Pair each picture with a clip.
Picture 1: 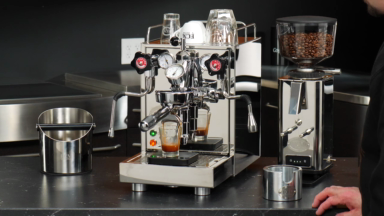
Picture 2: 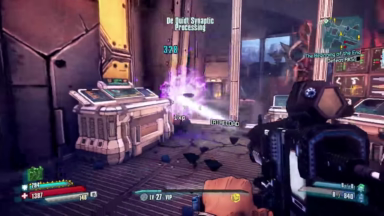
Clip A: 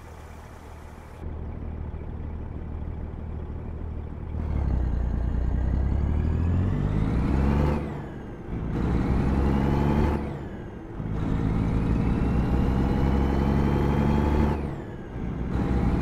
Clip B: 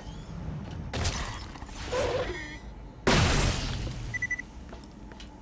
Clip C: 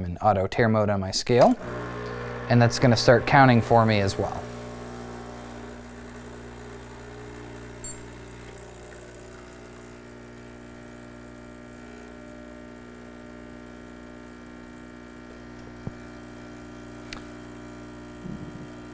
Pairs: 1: C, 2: B